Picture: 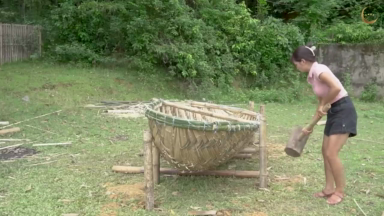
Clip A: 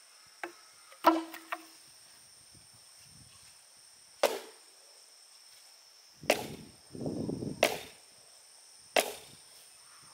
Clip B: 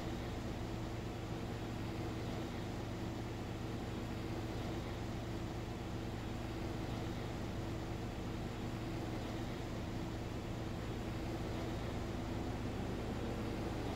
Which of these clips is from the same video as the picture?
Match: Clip A